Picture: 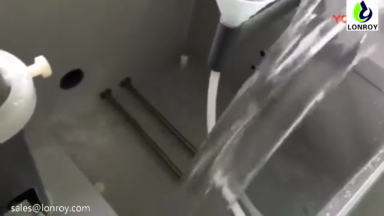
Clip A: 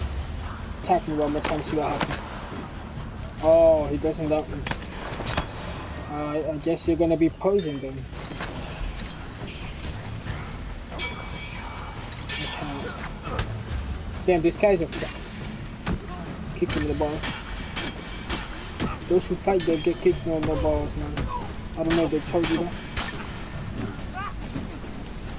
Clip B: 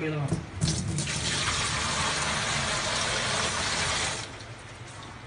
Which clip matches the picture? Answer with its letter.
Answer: B